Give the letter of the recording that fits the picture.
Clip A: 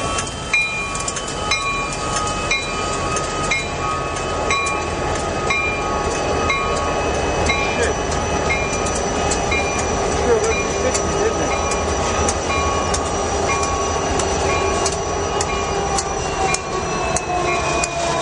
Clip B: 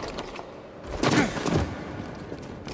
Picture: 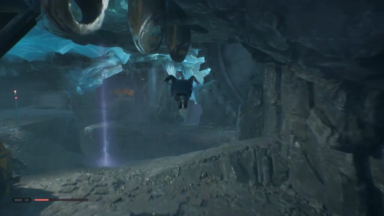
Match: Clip B